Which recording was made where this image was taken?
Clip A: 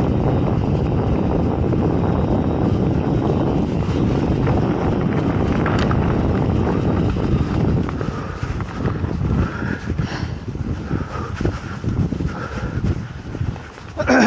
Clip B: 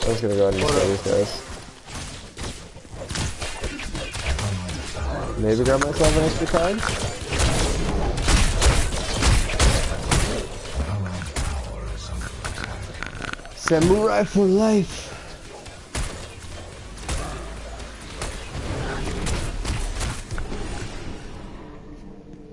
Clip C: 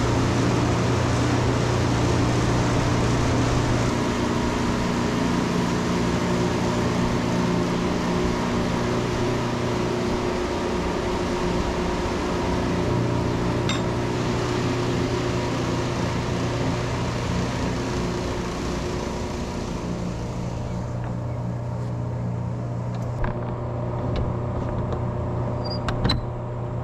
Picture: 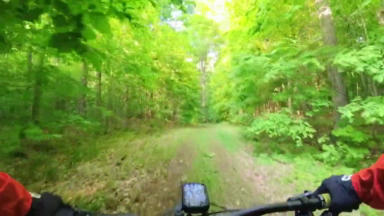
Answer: A